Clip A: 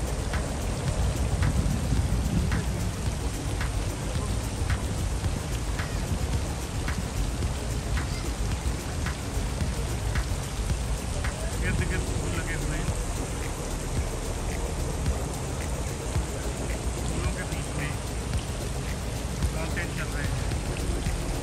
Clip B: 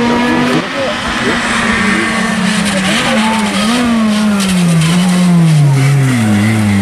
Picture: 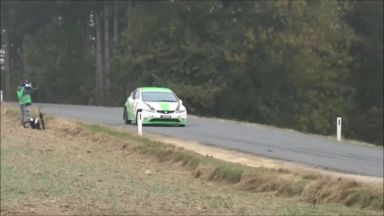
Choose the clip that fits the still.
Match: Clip B